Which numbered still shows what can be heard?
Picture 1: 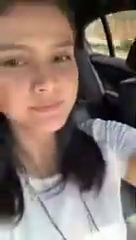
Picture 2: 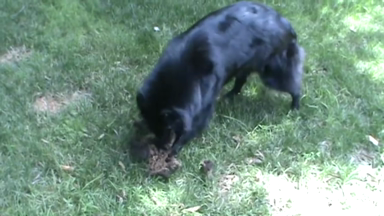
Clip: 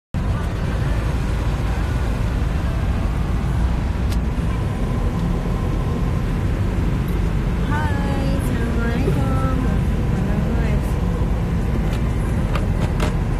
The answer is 1